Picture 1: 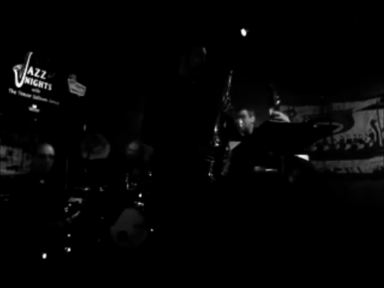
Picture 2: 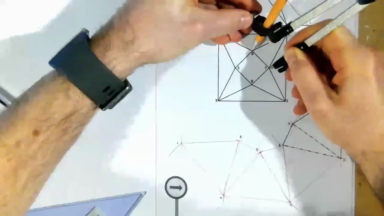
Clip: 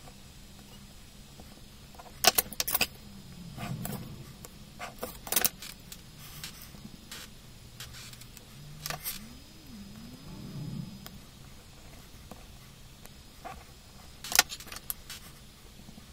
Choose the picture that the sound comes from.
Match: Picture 2